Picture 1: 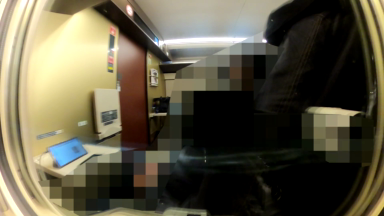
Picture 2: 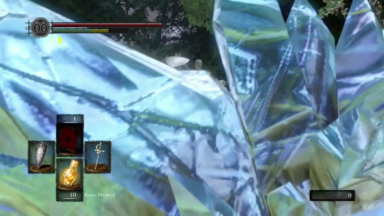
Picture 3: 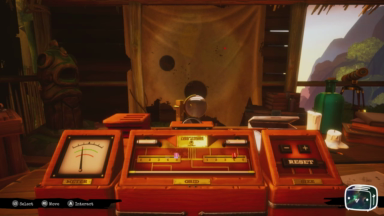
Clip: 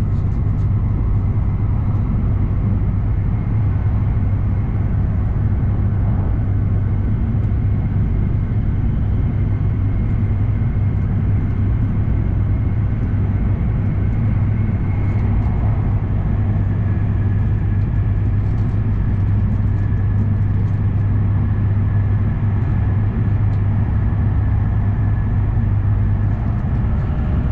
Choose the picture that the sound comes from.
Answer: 1